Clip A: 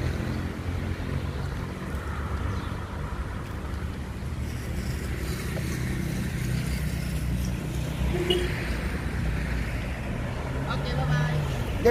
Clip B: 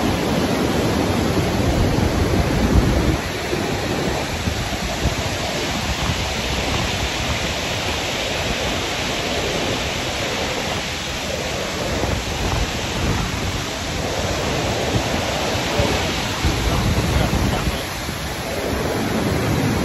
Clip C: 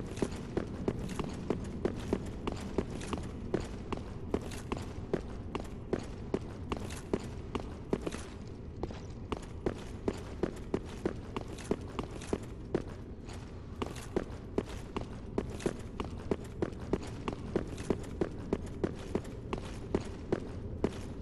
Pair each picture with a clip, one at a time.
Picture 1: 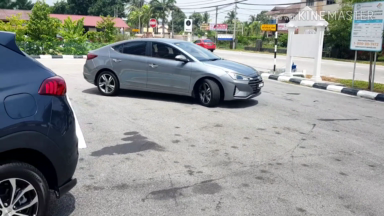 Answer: A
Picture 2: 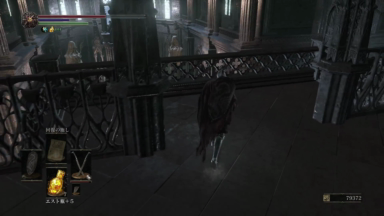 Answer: C